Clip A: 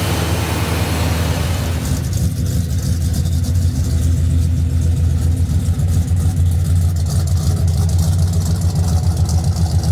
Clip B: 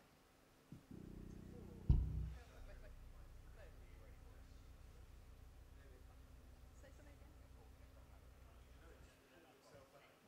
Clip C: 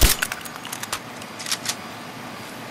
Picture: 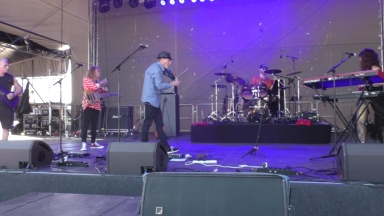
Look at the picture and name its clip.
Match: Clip B